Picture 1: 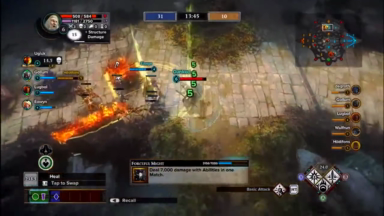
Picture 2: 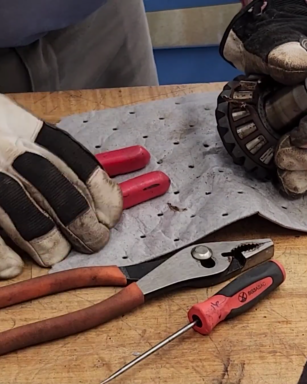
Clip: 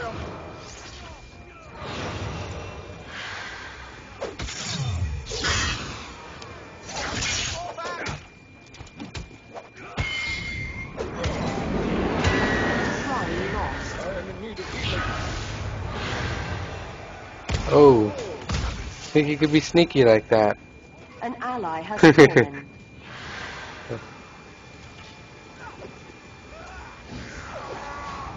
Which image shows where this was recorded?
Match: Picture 1